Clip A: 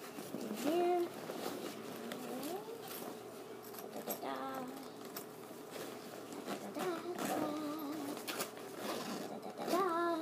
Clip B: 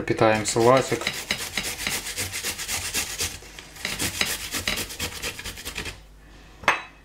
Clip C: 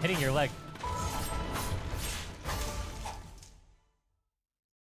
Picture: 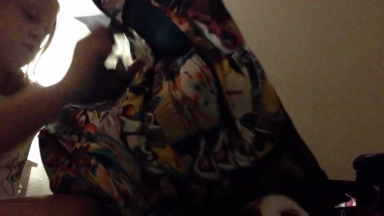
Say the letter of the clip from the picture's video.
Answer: A